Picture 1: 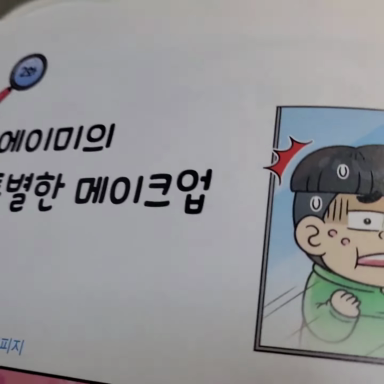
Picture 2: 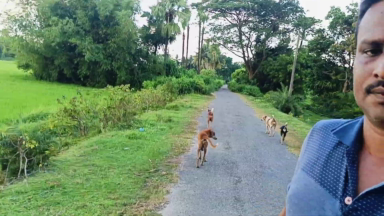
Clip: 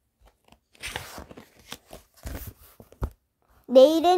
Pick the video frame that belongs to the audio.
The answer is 1